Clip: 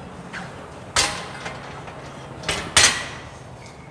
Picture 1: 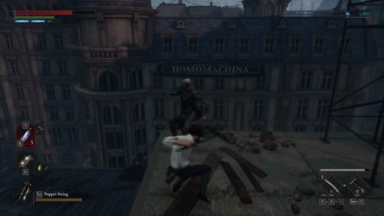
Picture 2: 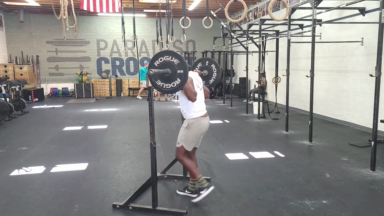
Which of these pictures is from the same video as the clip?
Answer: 2